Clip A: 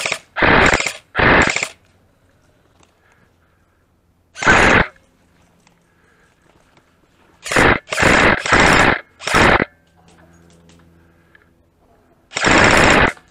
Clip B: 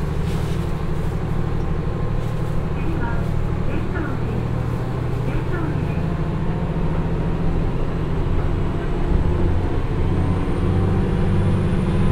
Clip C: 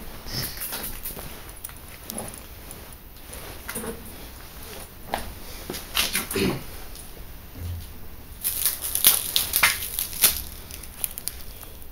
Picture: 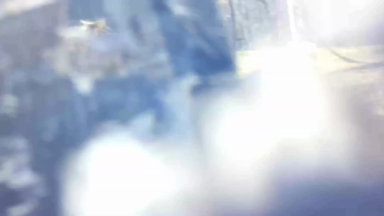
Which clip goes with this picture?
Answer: A